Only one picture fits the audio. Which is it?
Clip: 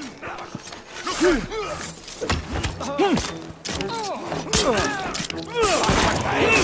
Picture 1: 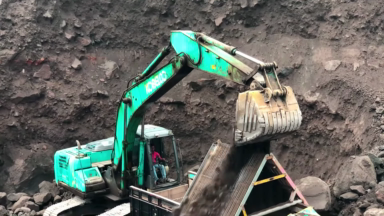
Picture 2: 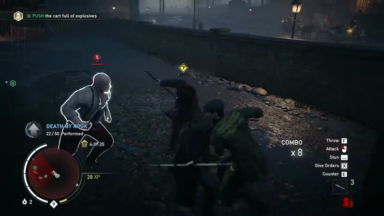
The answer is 2